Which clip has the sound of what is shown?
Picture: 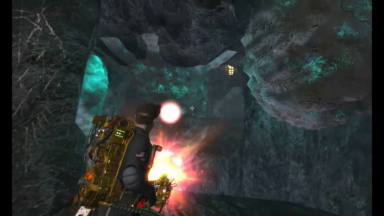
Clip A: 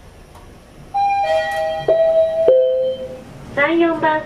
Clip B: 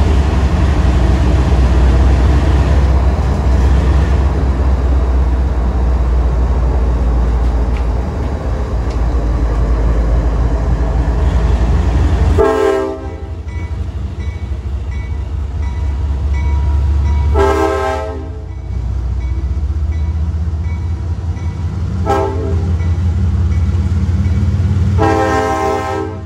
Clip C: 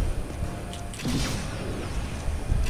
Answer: C